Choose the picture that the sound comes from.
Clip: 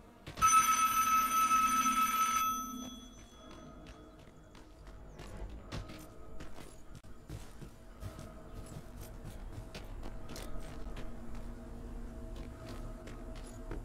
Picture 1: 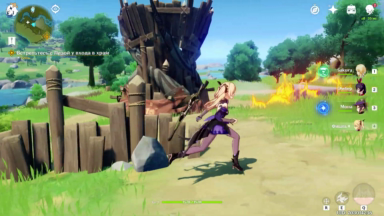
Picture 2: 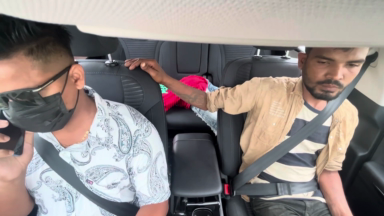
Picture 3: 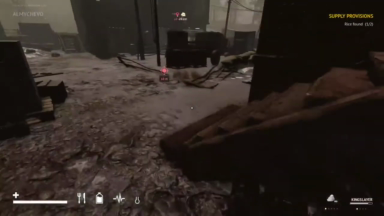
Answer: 3